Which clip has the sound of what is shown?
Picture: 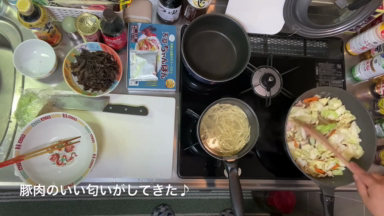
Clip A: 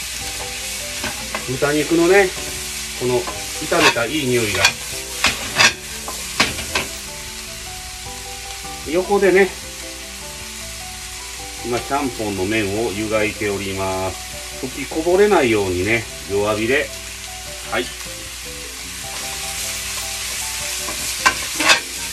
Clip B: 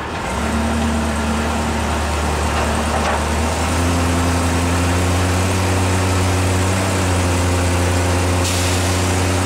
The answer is A